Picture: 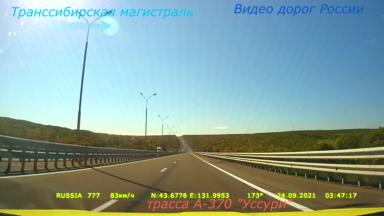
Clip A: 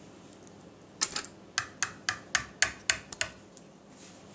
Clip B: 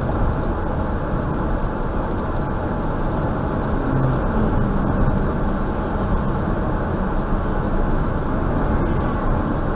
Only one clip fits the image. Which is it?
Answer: B